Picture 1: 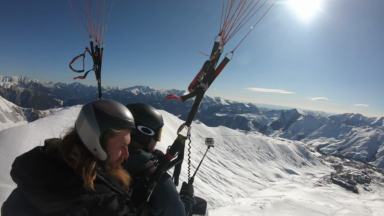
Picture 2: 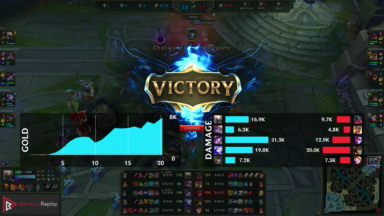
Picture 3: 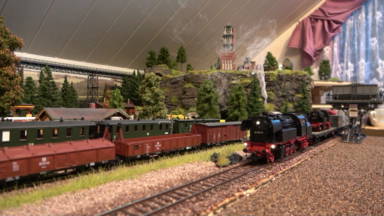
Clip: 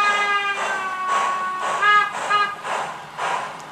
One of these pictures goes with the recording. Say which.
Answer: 3